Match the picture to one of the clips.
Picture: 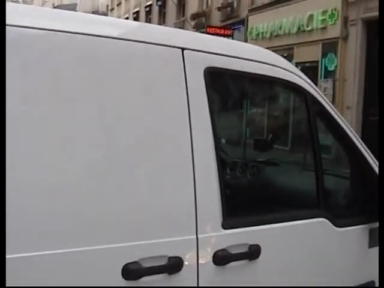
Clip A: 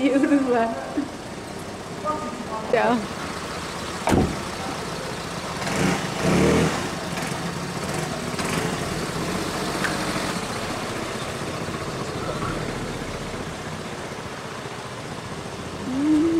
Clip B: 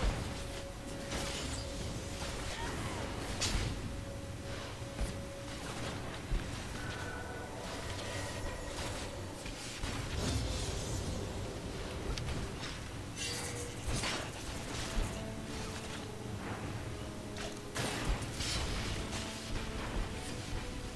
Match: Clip A